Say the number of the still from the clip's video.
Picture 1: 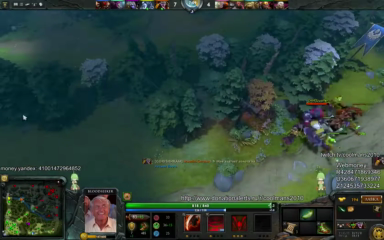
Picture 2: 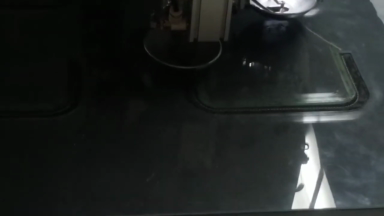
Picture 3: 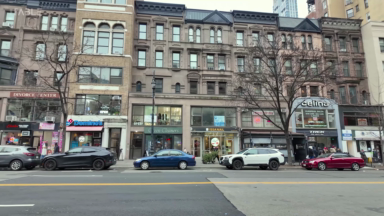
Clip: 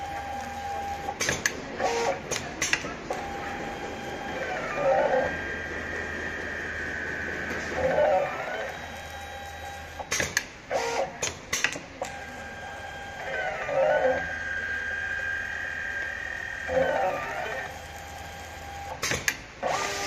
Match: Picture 2